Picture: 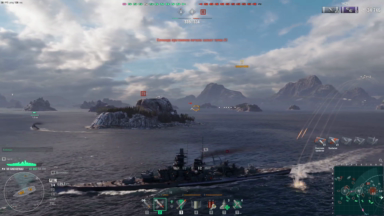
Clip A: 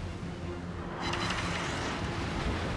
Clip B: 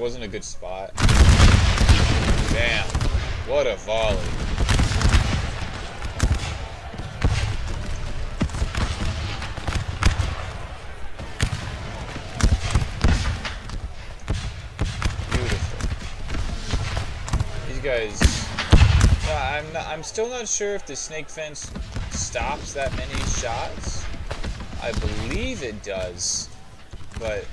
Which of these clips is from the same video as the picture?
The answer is A